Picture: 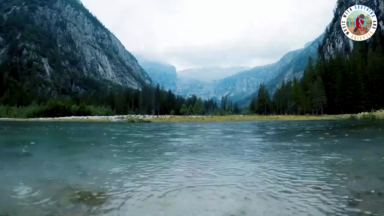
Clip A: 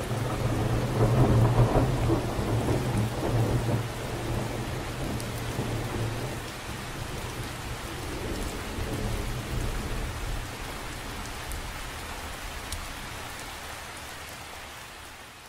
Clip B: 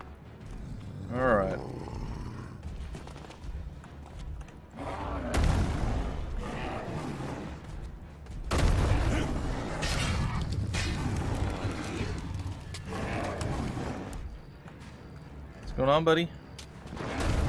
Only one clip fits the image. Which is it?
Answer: A